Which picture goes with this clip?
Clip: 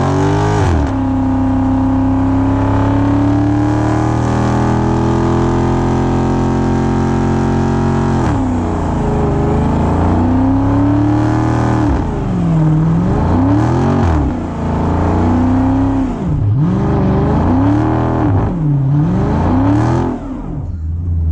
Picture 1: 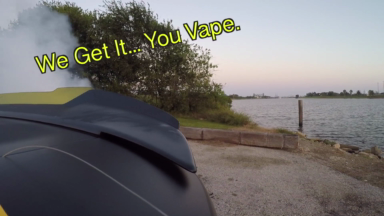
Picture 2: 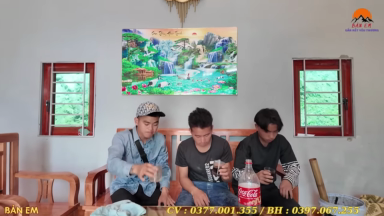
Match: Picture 1